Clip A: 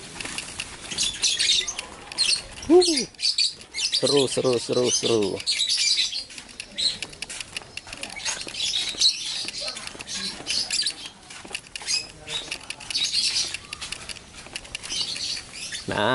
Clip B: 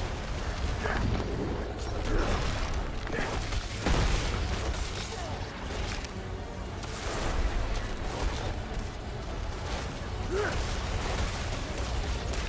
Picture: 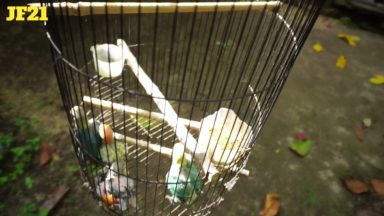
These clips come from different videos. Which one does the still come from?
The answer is A